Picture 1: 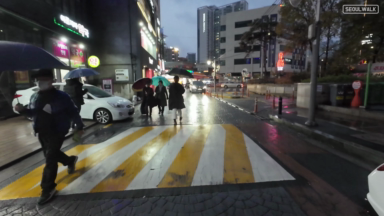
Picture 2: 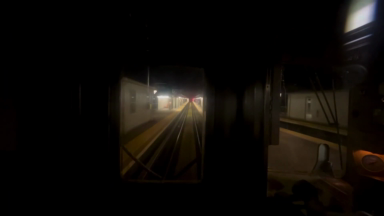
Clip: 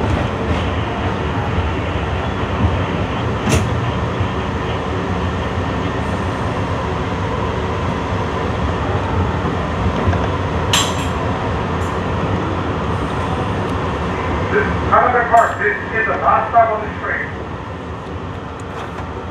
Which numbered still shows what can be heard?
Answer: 2